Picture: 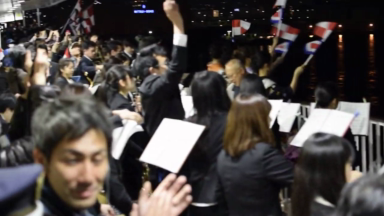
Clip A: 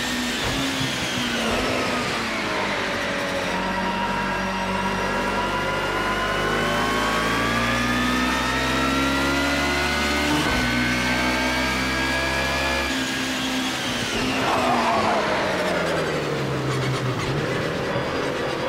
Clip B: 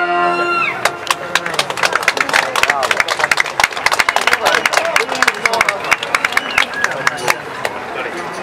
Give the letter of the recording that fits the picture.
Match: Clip B